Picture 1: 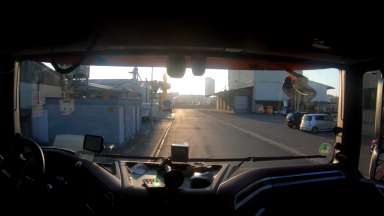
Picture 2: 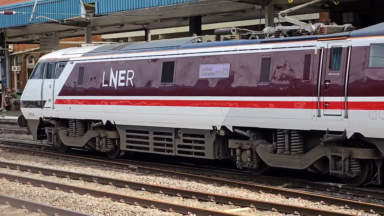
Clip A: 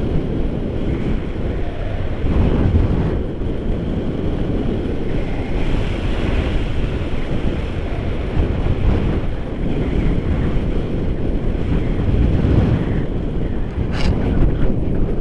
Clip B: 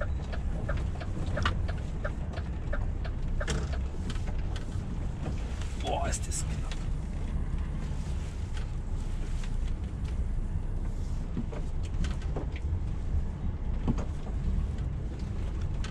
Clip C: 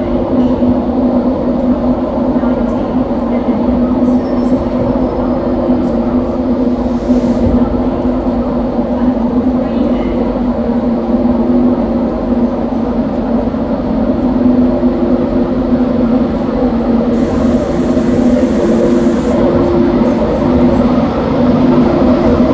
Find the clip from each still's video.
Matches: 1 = B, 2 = C